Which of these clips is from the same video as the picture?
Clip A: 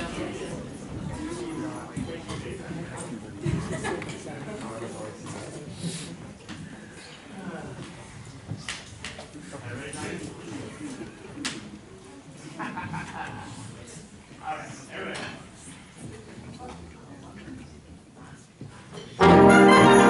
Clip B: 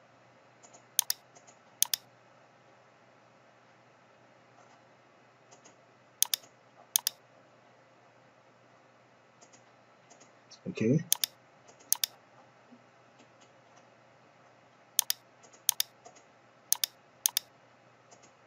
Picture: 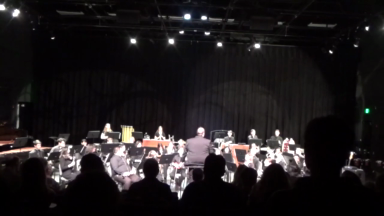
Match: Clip A